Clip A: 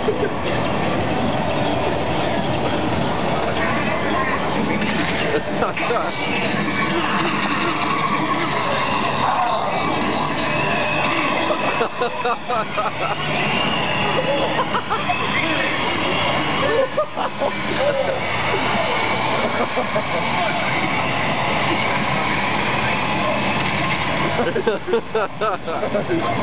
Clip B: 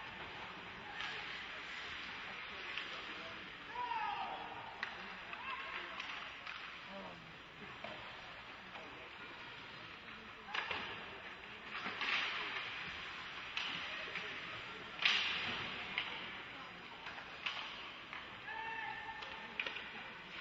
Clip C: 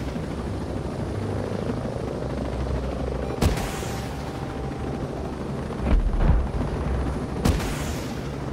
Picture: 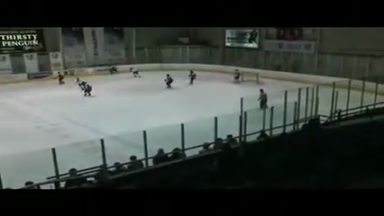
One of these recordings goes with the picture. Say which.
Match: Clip B